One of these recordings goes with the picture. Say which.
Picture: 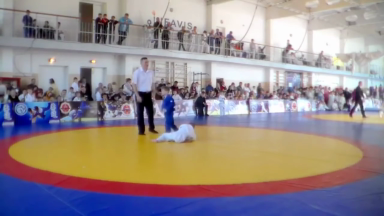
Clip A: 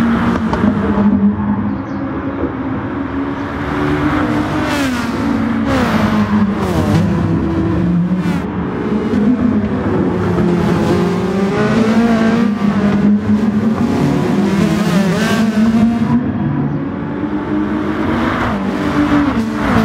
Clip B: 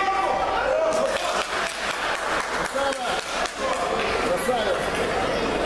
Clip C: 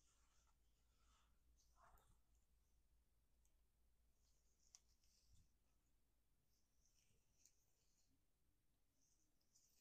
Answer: B